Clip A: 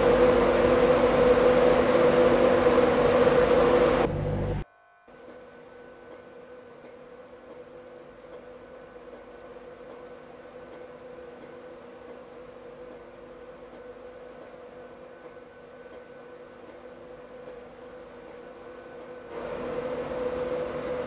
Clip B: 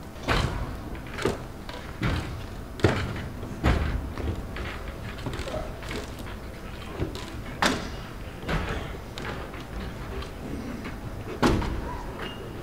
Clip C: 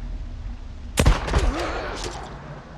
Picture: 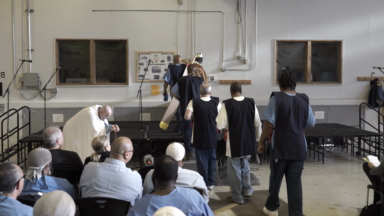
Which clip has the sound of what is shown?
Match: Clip B